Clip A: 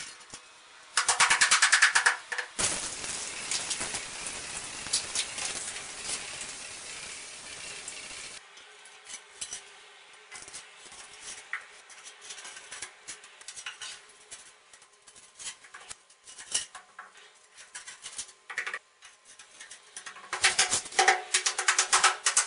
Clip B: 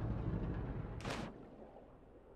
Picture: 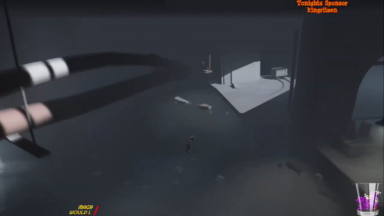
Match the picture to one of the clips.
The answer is B